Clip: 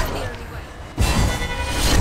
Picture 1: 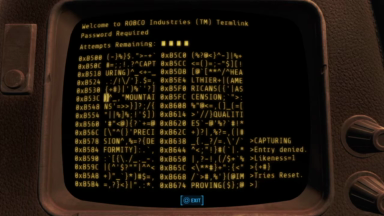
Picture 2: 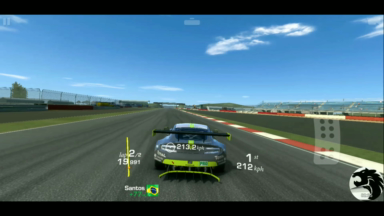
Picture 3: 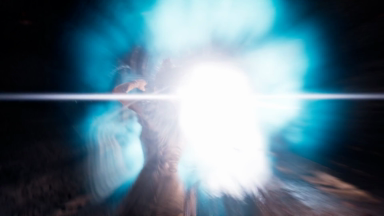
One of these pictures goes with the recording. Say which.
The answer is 3